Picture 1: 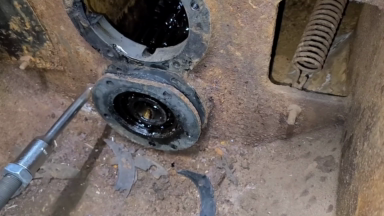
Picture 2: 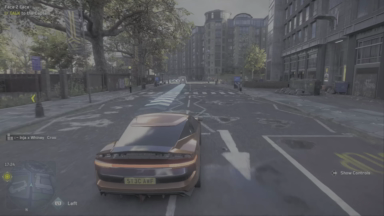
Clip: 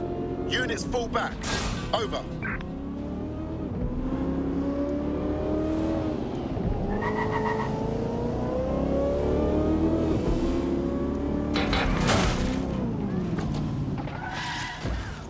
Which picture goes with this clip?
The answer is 2